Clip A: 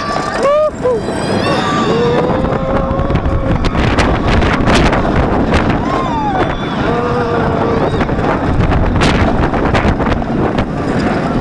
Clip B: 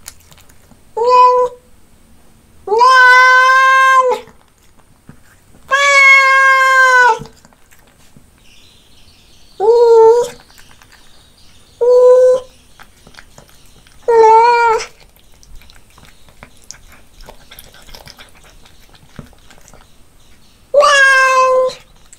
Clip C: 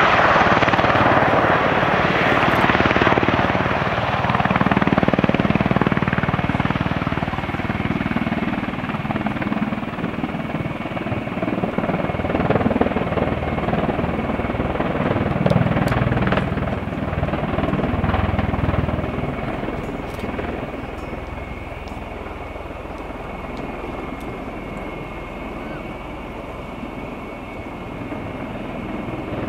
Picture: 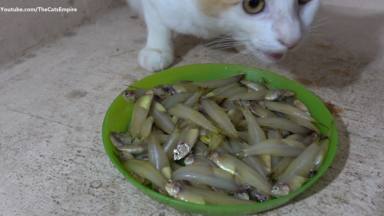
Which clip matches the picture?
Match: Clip B